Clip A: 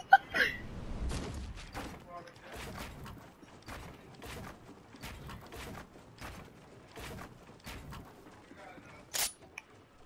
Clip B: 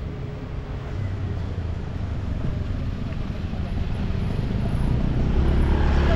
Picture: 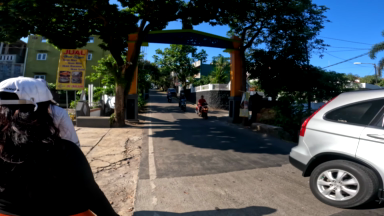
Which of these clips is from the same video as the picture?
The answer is B